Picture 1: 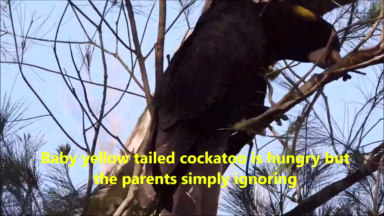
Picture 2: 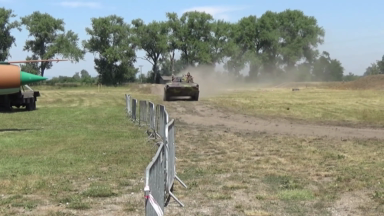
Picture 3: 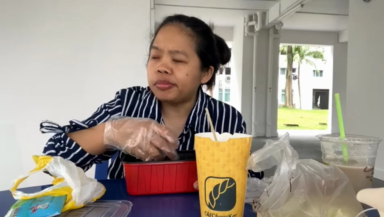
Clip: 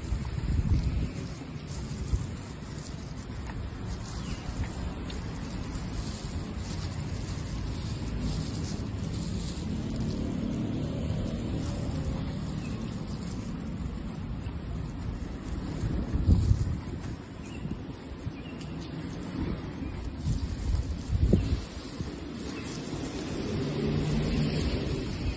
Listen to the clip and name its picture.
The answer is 3